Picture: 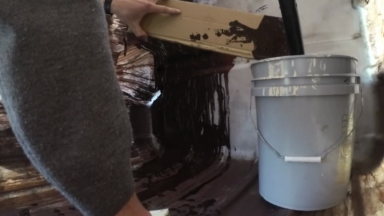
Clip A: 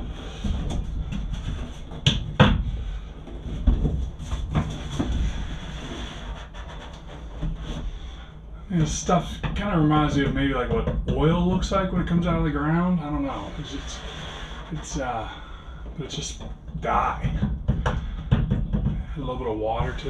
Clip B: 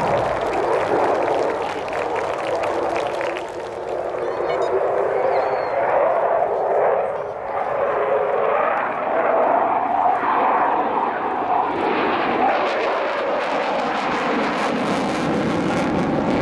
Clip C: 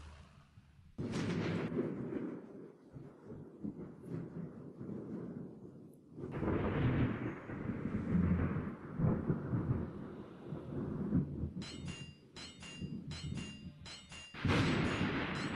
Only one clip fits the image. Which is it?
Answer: A